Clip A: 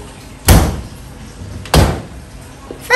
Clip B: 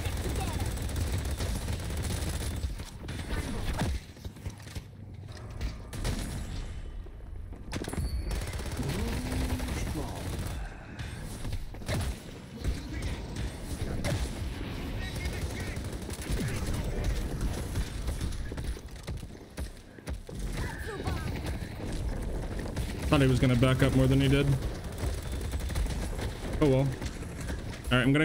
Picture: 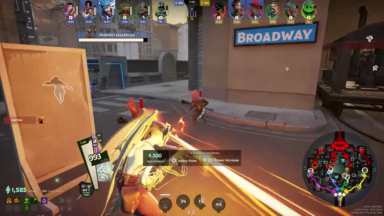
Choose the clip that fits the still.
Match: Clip B